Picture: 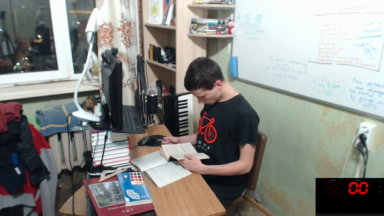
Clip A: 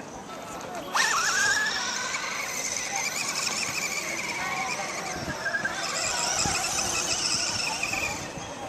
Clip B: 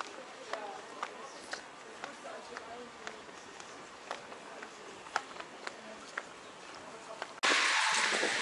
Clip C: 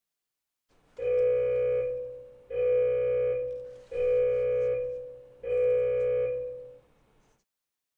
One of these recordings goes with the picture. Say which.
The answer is C